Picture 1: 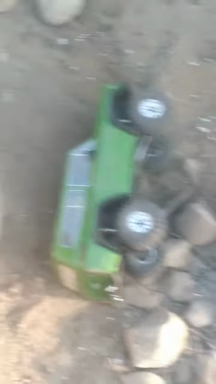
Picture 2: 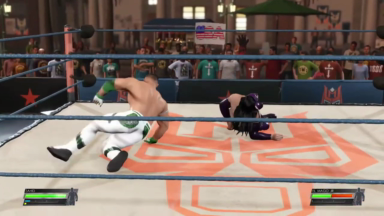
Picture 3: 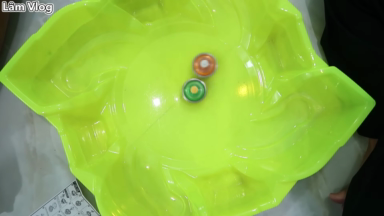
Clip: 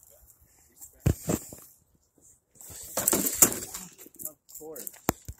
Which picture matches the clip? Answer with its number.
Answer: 1